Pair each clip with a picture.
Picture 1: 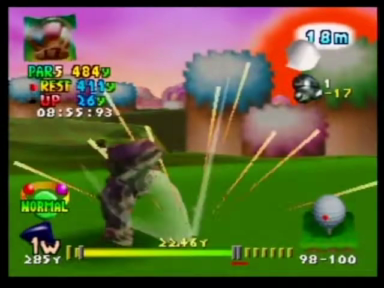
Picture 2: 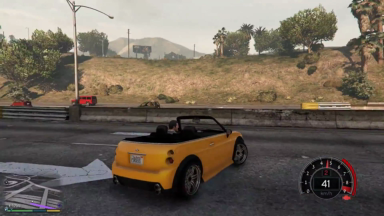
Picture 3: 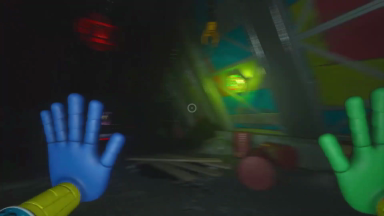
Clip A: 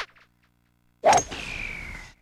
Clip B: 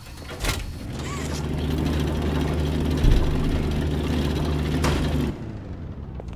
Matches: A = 1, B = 3